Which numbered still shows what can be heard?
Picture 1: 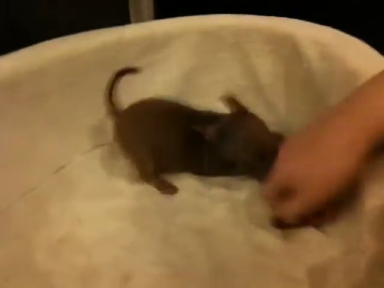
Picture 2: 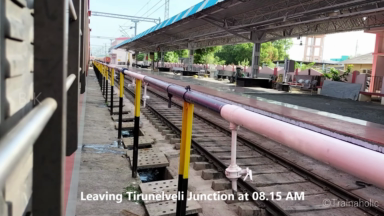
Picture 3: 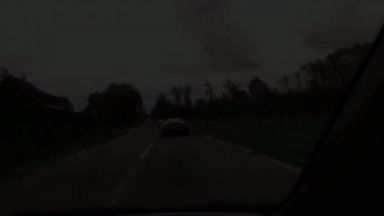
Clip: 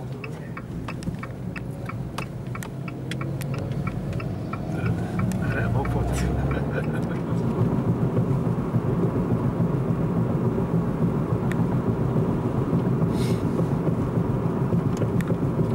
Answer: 3